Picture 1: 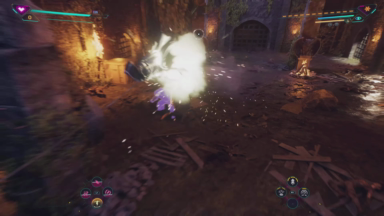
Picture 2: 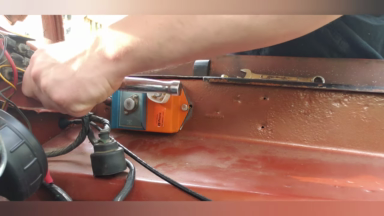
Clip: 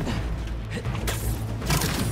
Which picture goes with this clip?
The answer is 1